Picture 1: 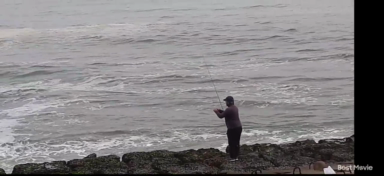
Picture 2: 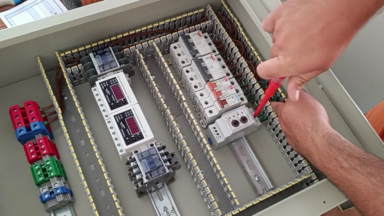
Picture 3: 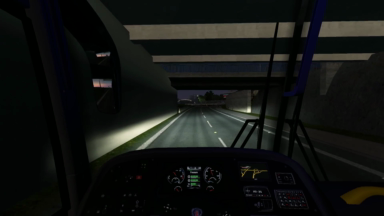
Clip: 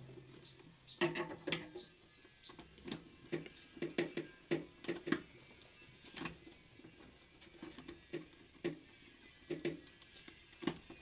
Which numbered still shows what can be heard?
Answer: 2